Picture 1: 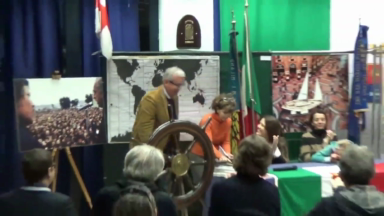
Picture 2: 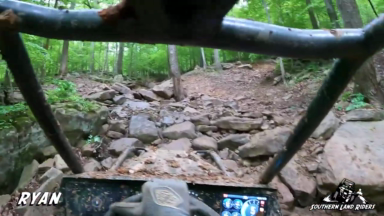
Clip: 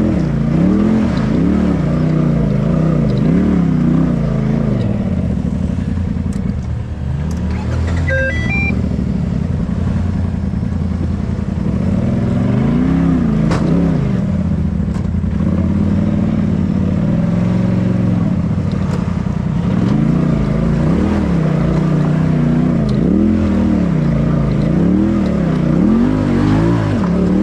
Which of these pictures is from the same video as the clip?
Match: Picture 2